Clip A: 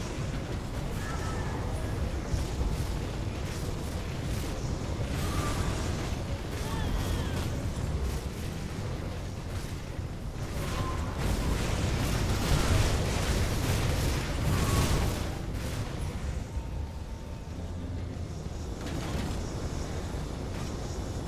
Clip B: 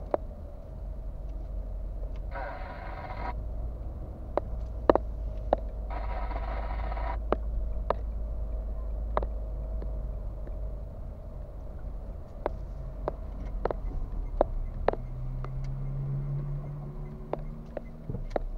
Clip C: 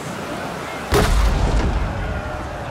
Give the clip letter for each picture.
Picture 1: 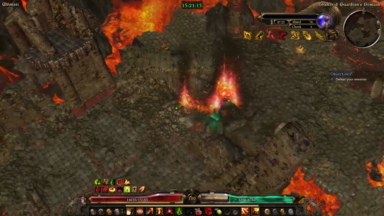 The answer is A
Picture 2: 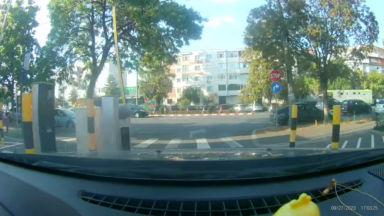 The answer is B